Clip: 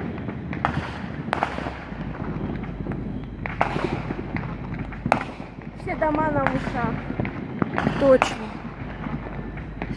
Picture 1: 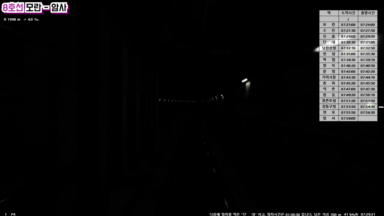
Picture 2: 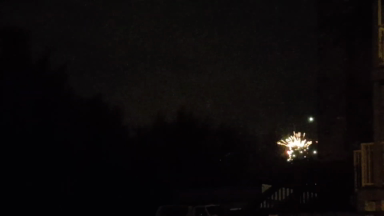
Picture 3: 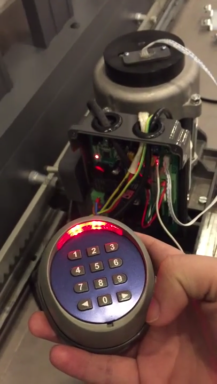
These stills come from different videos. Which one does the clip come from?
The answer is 2